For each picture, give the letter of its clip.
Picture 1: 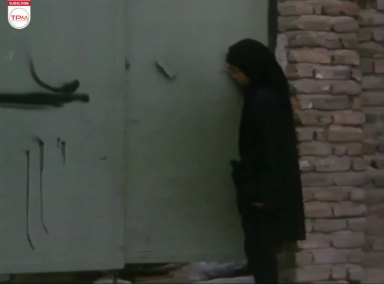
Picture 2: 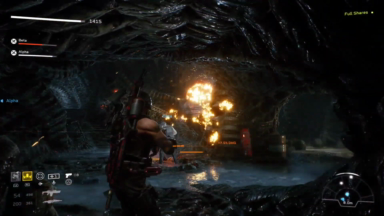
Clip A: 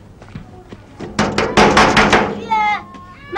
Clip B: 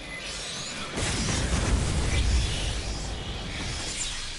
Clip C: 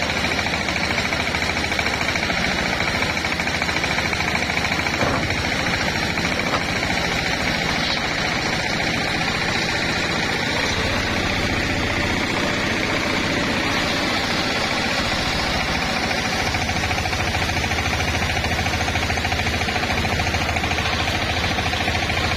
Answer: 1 A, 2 B